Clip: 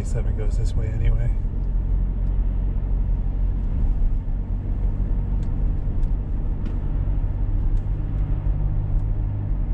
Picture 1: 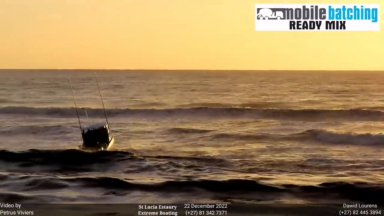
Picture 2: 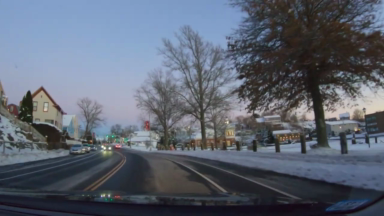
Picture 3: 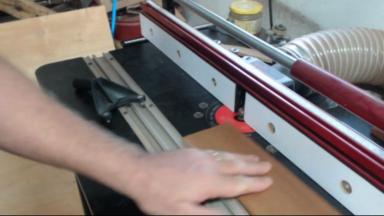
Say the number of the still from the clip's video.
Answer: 2